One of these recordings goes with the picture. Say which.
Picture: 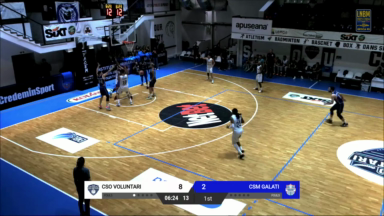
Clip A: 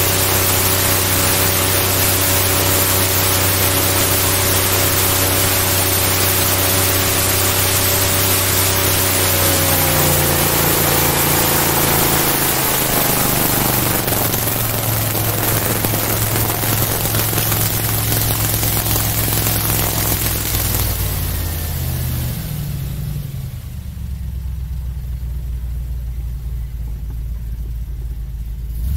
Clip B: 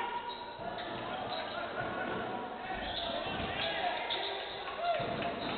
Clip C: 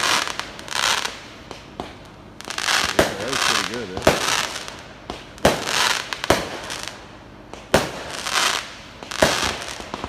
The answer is B